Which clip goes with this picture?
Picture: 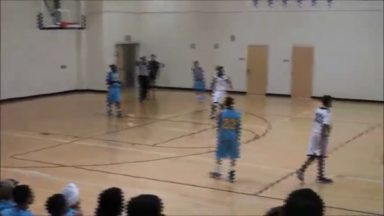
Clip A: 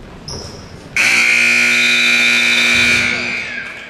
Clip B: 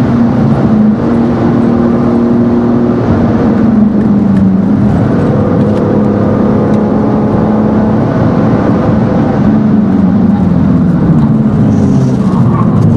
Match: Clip A